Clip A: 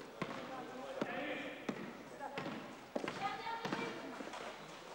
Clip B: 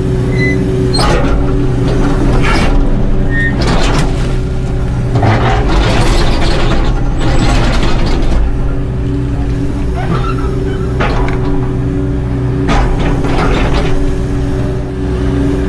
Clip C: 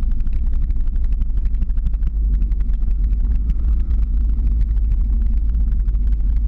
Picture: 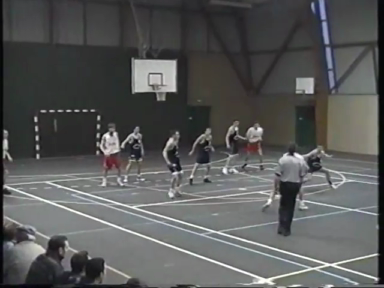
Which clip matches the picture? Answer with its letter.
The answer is A